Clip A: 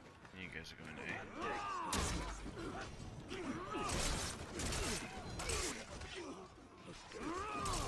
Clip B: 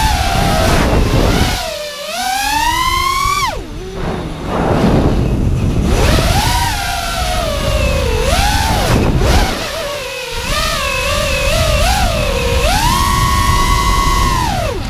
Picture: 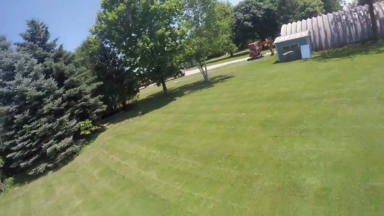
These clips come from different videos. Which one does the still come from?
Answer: B